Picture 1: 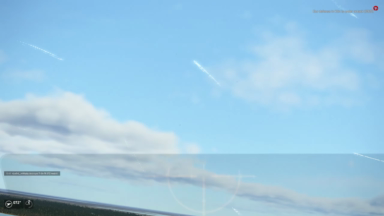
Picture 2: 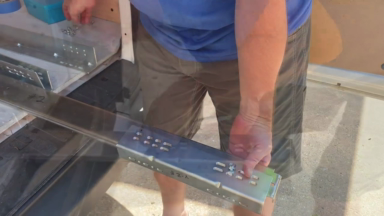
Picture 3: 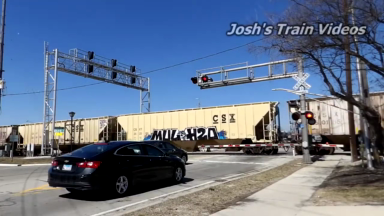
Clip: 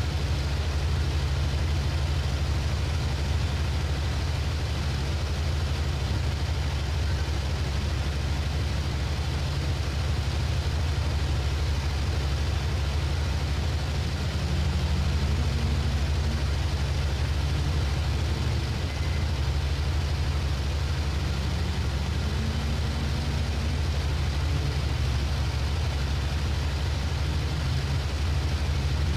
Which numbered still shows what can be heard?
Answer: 1